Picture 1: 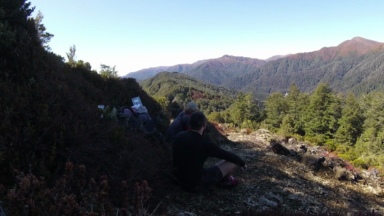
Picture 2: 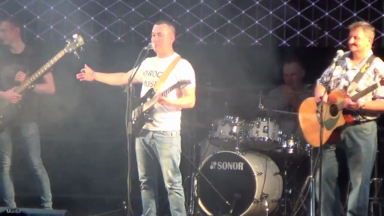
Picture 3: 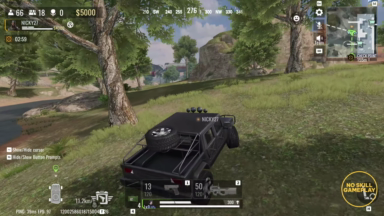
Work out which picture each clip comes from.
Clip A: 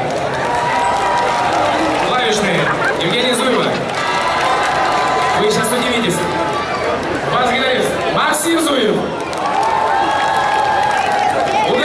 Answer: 2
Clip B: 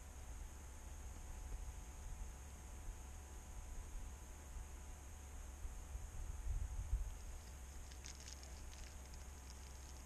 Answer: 1